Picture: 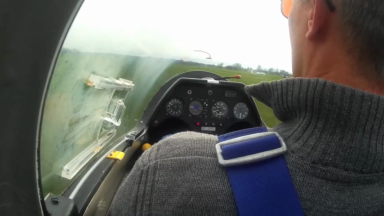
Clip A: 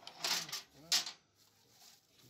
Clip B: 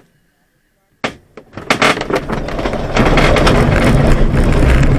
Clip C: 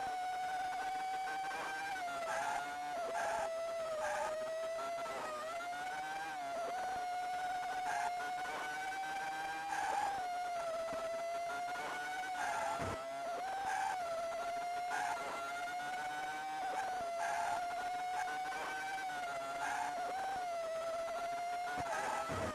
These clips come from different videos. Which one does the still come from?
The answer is B